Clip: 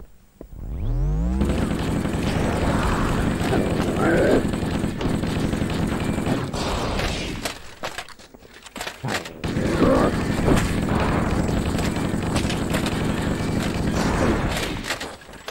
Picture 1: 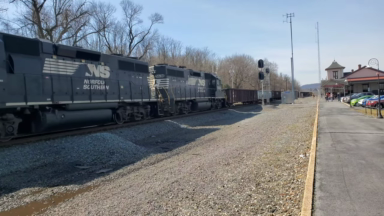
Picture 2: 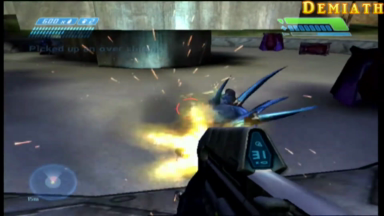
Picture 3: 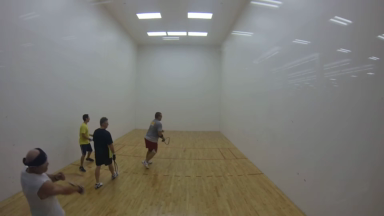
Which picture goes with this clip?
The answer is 2